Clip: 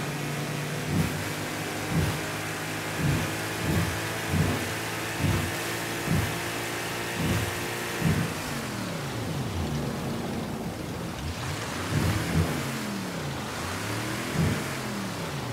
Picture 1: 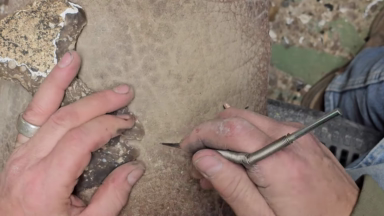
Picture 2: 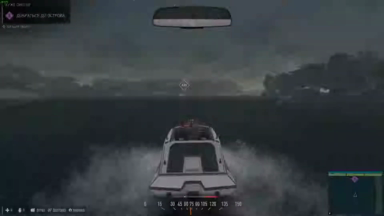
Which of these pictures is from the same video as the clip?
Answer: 2